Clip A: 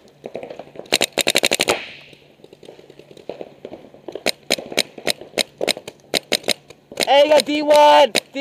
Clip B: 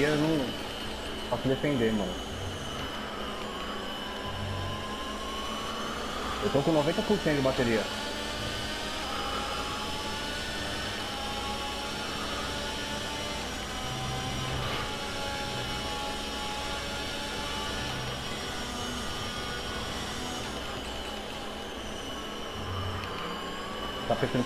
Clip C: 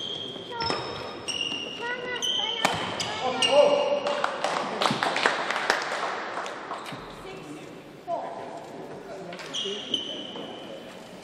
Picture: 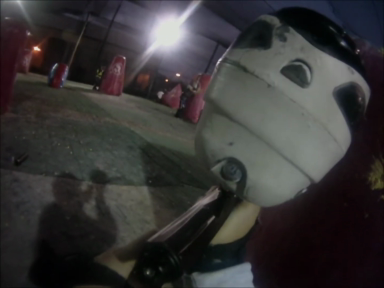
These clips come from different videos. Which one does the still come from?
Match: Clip A